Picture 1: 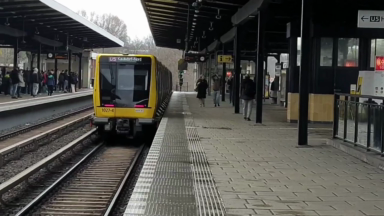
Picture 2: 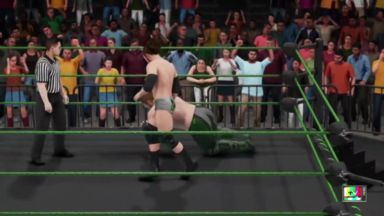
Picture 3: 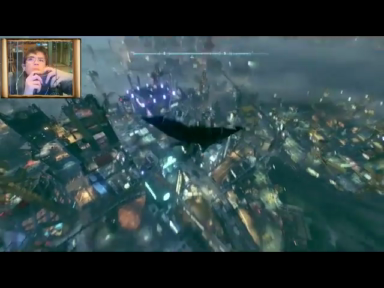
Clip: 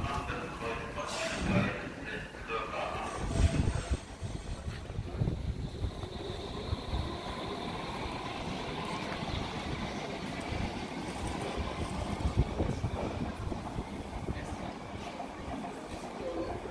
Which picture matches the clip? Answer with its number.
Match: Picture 1